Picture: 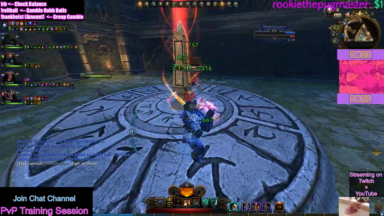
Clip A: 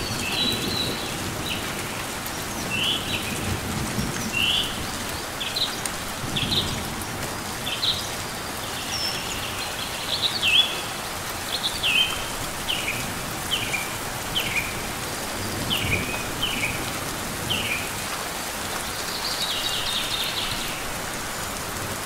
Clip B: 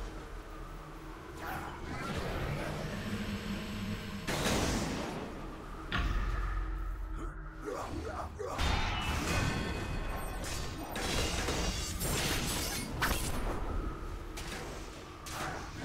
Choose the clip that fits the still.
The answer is B